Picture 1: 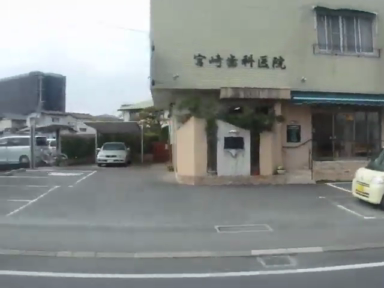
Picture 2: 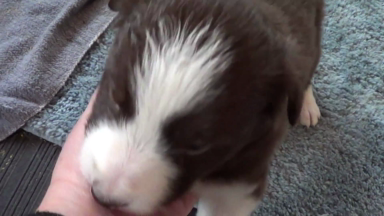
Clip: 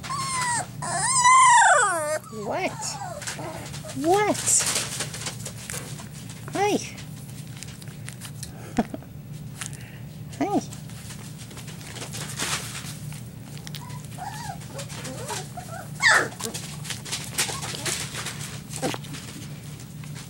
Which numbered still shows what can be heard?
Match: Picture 2